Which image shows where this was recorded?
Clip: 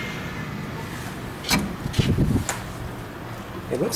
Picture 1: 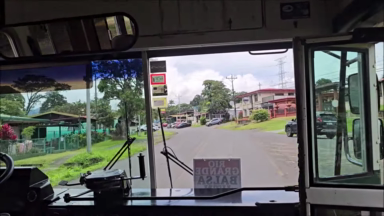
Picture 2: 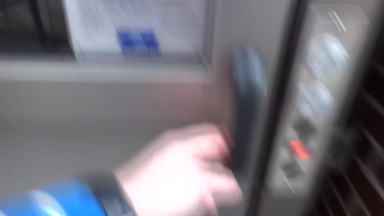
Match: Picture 2